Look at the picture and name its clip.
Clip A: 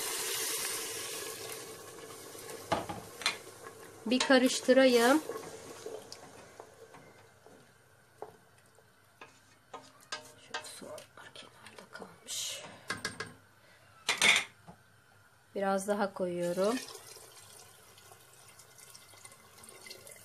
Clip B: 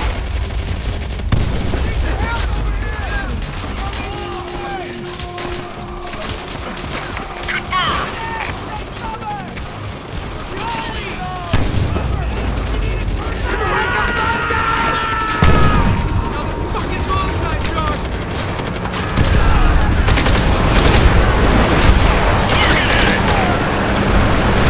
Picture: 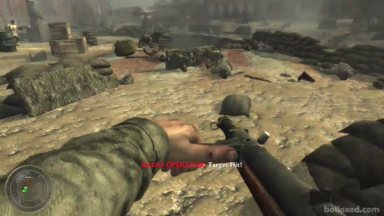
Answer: B